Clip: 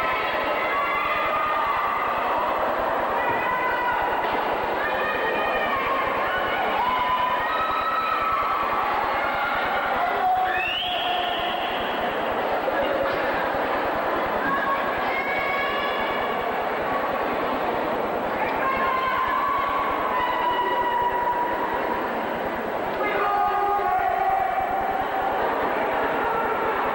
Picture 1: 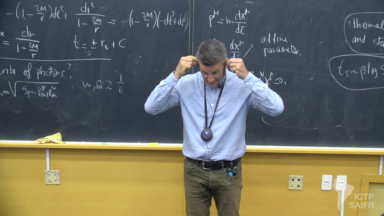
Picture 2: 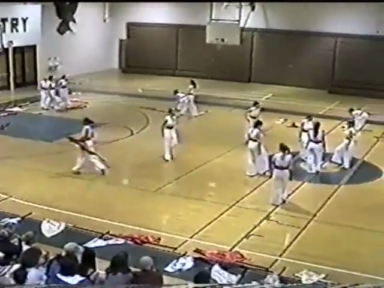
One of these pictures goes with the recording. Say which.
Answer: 2